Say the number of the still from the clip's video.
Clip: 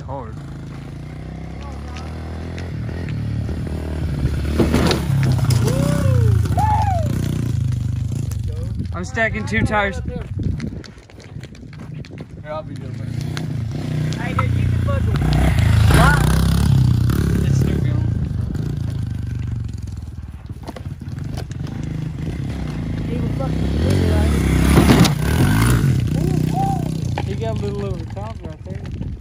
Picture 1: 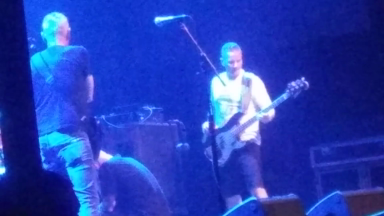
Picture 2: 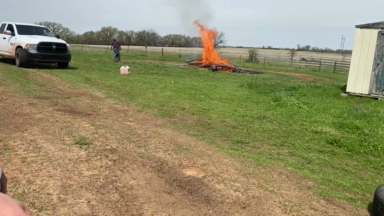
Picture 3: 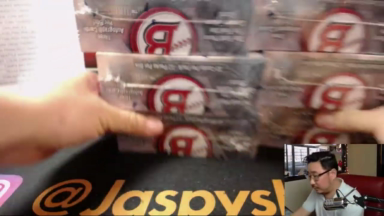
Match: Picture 2